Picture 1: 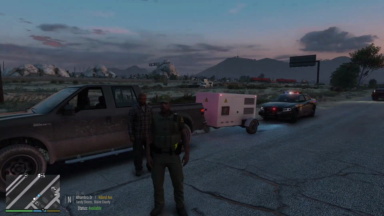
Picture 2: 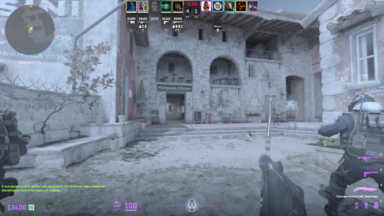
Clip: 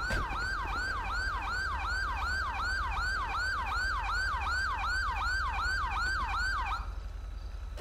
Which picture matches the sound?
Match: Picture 1